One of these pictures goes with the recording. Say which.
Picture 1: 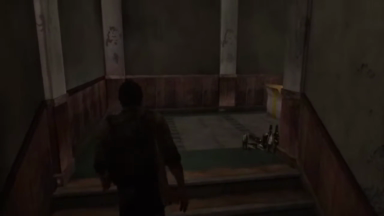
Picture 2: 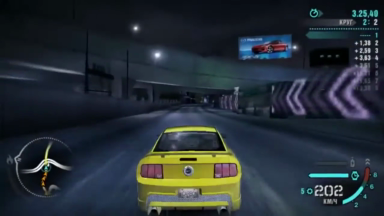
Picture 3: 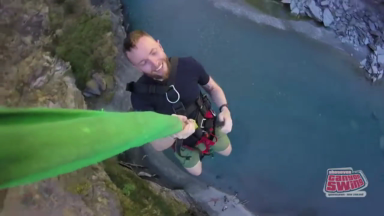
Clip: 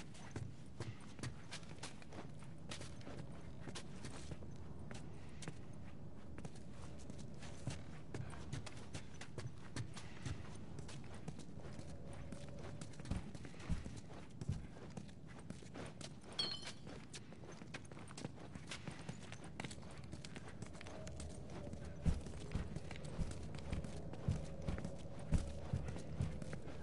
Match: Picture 1